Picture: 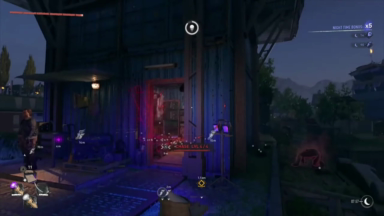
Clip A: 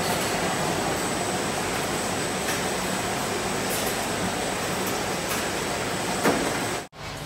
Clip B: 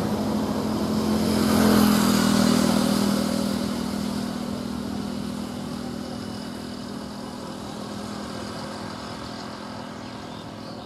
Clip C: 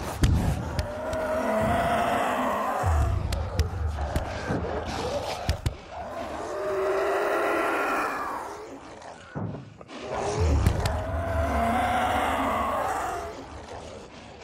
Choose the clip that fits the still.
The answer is C